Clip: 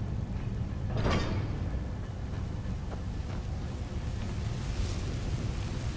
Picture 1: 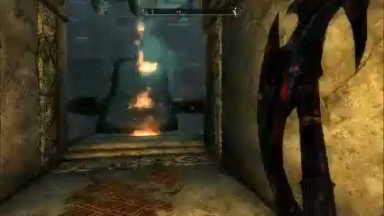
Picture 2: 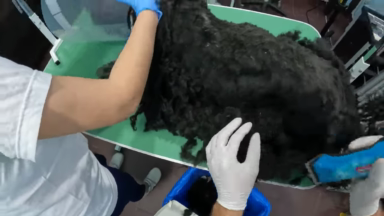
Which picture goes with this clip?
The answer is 1